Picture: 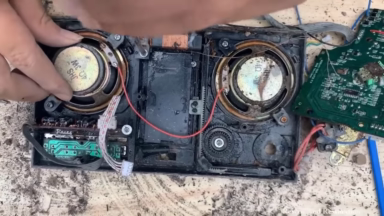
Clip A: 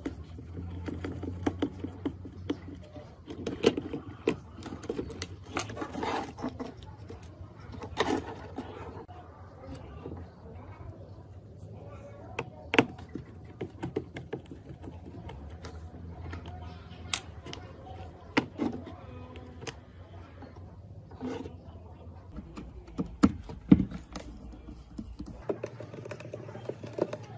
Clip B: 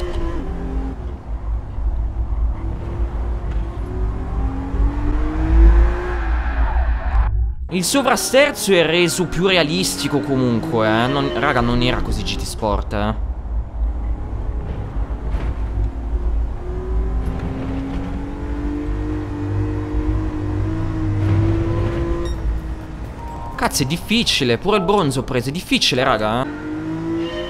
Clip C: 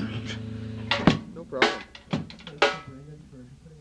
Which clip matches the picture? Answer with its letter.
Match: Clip A